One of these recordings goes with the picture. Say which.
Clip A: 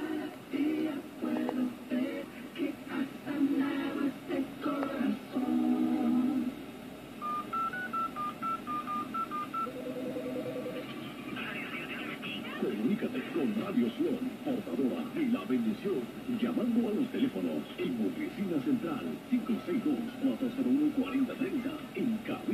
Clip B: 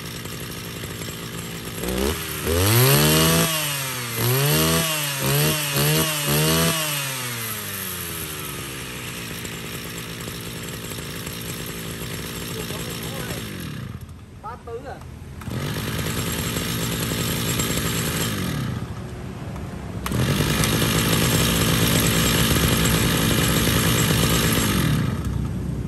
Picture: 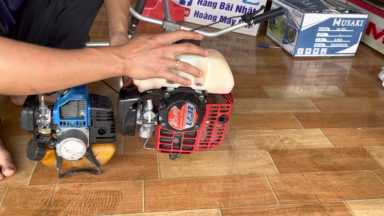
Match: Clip B